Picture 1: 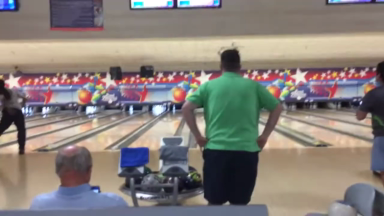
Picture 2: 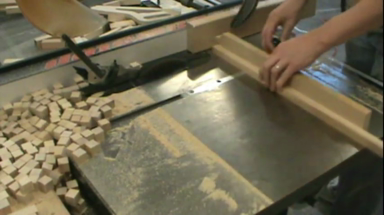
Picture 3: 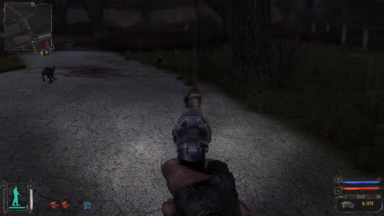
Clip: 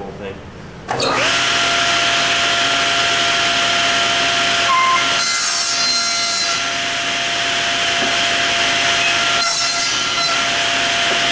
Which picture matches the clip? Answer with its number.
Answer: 2